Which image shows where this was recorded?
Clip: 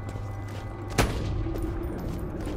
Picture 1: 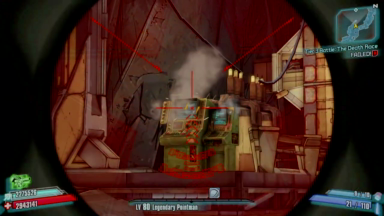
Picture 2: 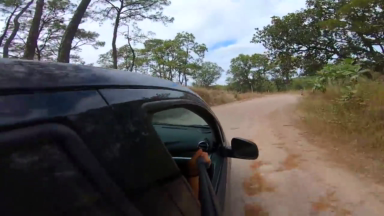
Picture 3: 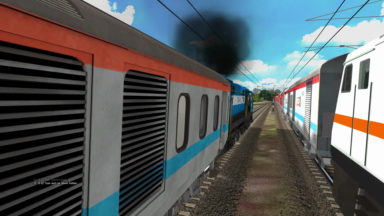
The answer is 1